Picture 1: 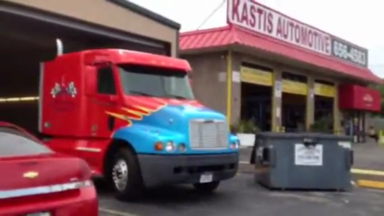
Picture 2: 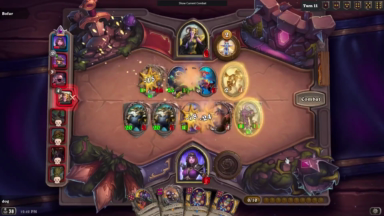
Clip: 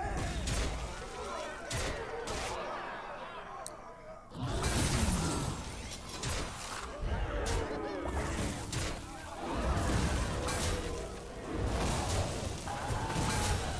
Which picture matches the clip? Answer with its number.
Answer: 2